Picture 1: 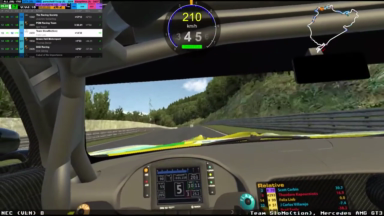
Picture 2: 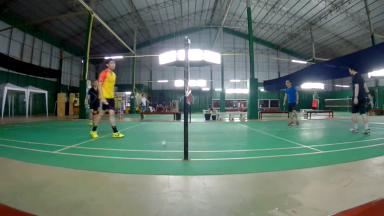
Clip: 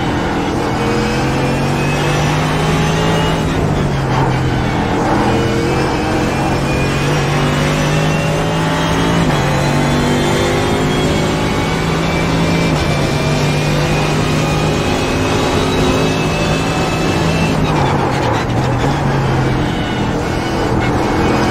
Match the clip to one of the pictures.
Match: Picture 1